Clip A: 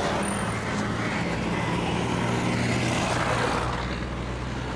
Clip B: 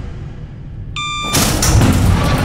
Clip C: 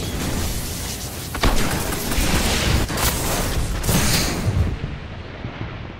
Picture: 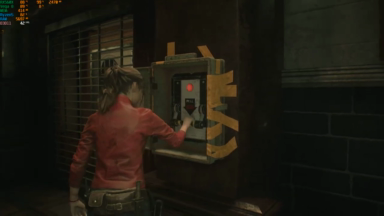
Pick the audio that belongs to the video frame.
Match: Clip B